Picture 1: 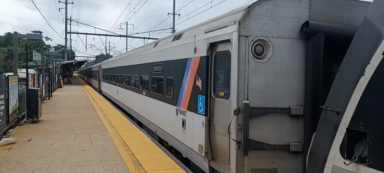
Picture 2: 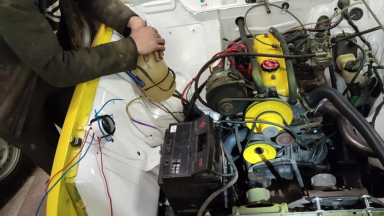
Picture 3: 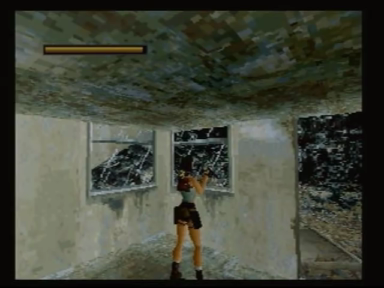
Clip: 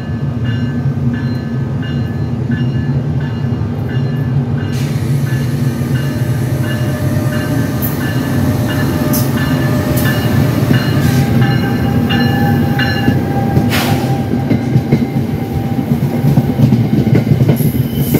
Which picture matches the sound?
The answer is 1